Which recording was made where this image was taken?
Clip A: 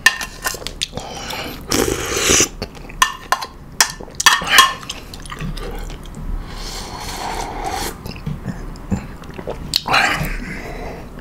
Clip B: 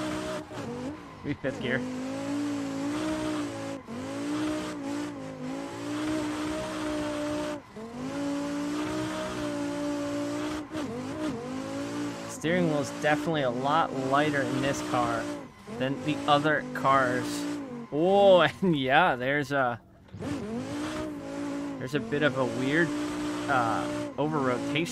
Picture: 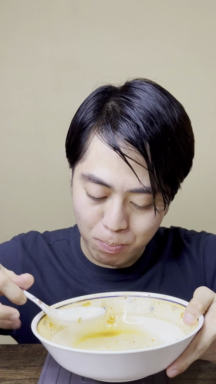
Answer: A